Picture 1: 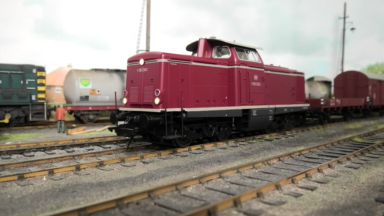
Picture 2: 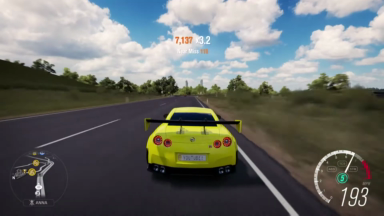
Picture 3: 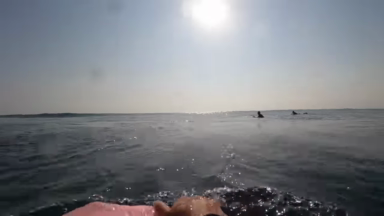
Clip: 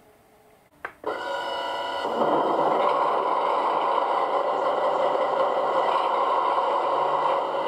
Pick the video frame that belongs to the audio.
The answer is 1